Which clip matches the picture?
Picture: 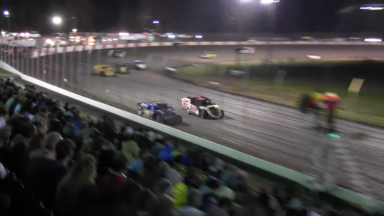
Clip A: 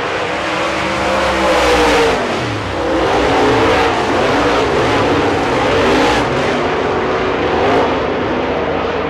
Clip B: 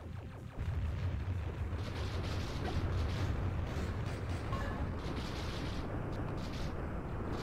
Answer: A